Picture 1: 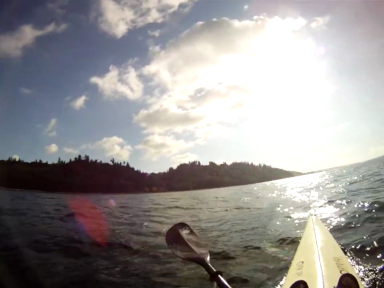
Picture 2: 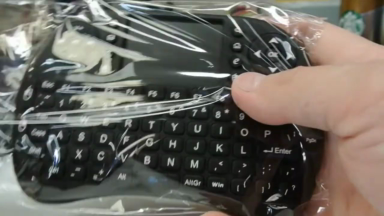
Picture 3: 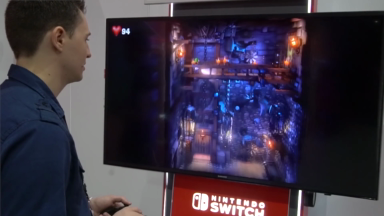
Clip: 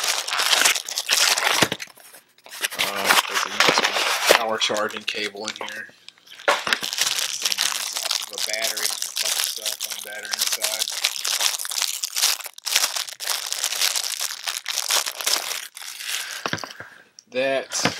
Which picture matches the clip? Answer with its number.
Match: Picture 2